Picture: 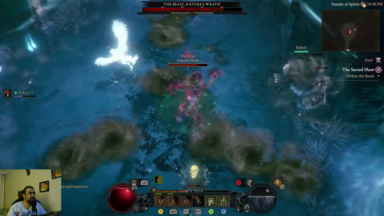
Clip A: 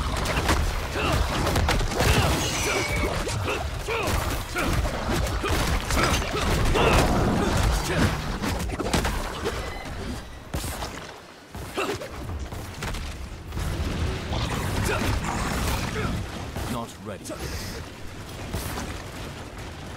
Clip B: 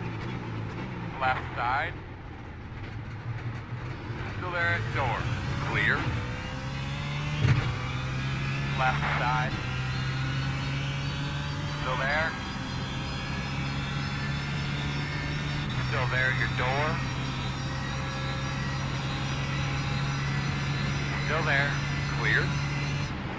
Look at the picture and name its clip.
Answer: A